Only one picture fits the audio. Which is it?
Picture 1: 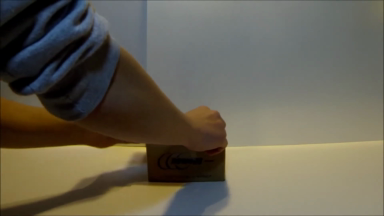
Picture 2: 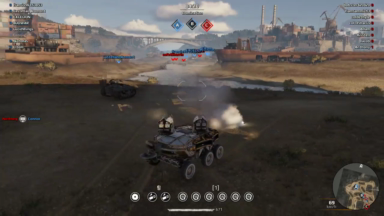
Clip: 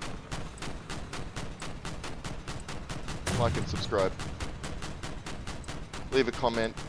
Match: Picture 2